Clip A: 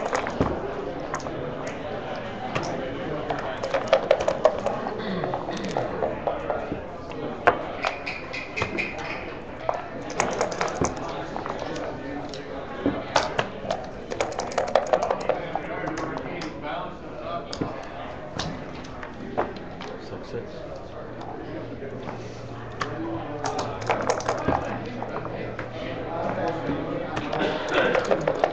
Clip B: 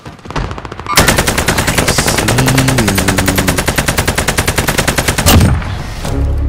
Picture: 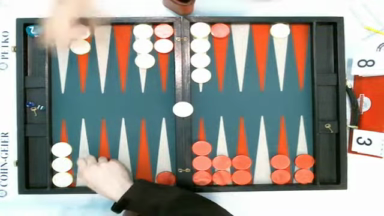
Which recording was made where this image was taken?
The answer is A